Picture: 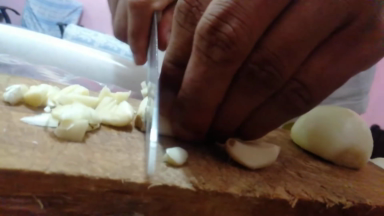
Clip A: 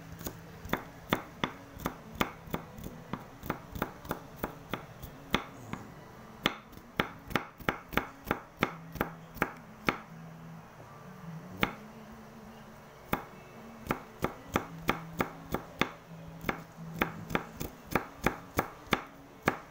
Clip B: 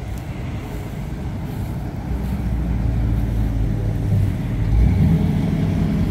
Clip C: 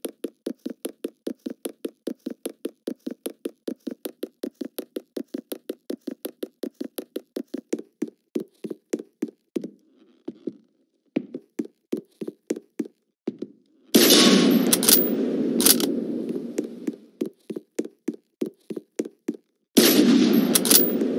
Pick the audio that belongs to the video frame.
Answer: A